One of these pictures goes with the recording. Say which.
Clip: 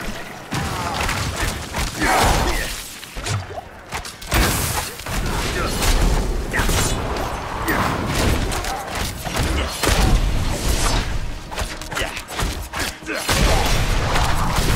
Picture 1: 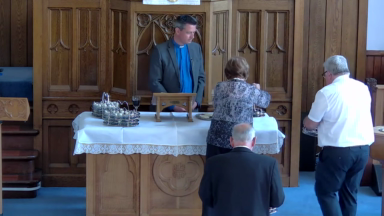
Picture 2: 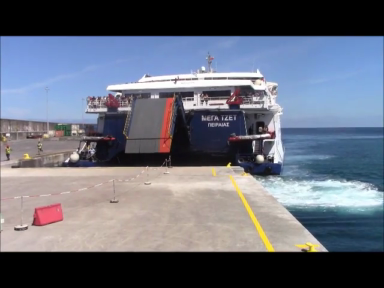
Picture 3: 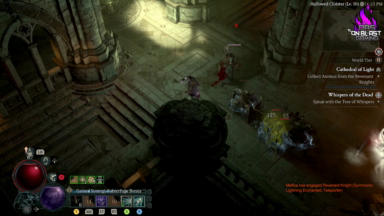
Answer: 3